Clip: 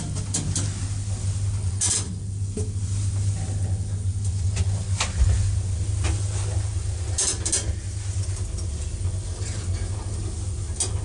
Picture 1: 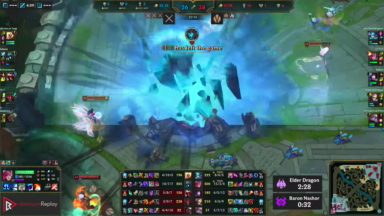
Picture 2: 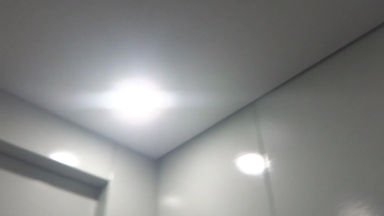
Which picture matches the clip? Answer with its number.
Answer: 2